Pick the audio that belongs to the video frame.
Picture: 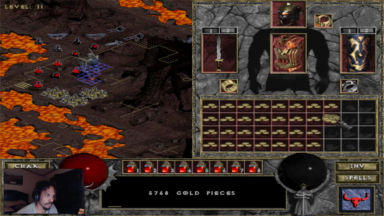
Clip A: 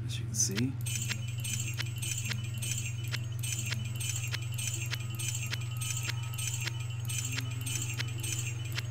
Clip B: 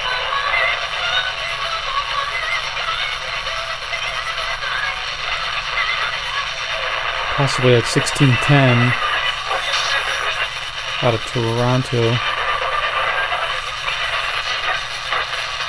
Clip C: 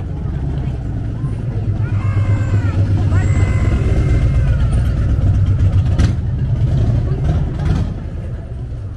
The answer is A